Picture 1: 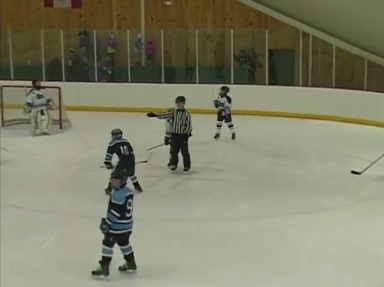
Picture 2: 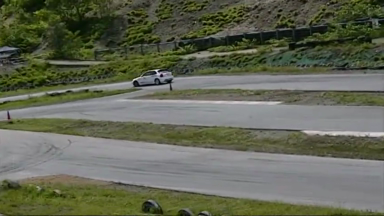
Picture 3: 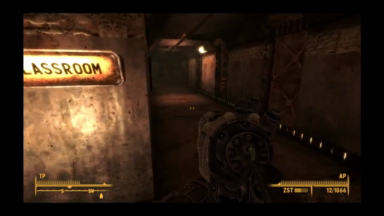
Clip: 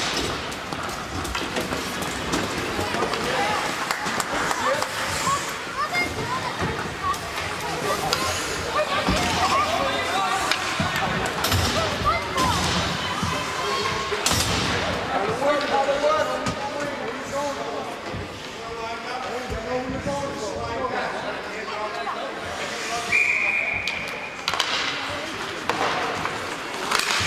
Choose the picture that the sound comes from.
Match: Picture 1